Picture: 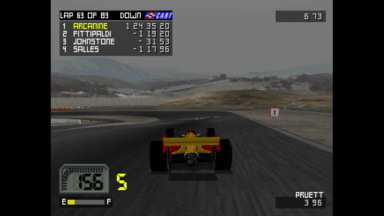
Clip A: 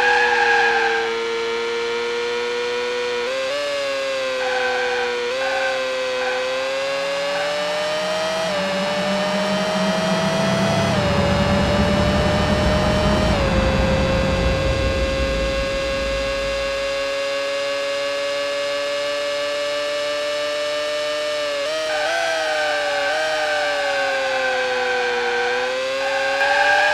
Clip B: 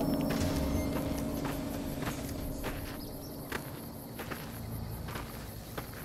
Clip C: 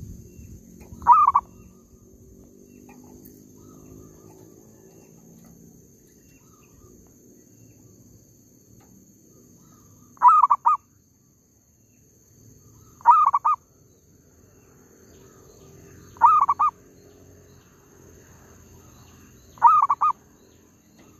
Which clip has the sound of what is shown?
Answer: A